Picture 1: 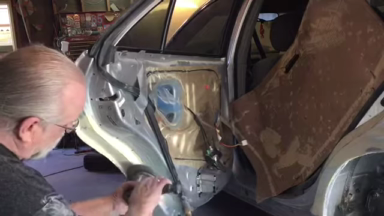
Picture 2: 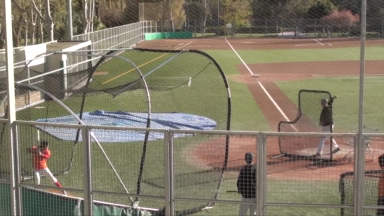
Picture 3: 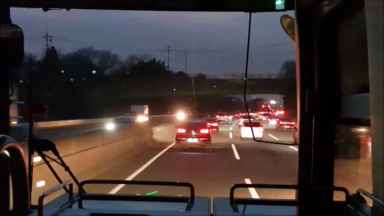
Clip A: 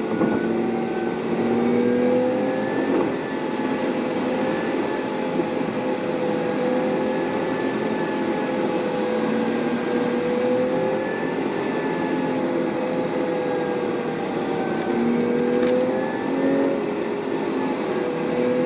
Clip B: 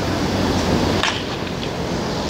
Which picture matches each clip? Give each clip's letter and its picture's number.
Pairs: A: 3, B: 2